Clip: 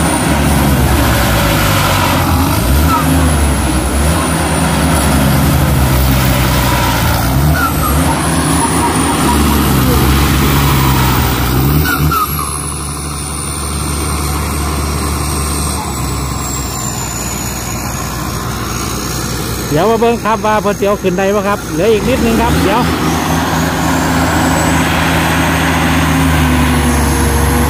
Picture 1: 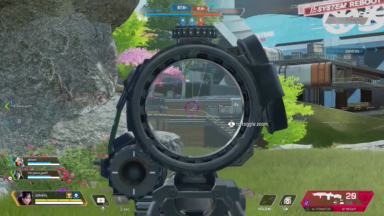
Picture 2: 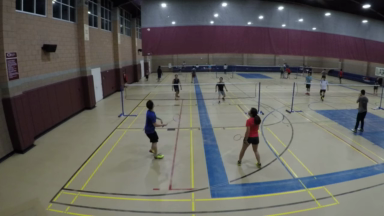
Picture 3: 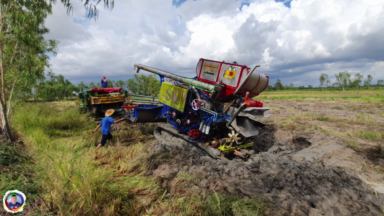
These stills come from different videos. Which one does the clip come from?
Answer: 3